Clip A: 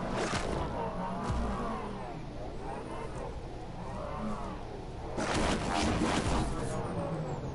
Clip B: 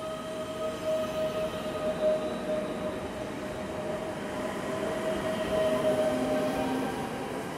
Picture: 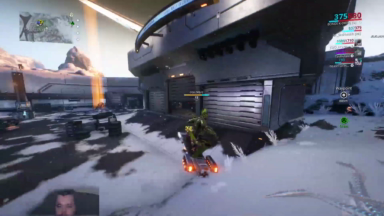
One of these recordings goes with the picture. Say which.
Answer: A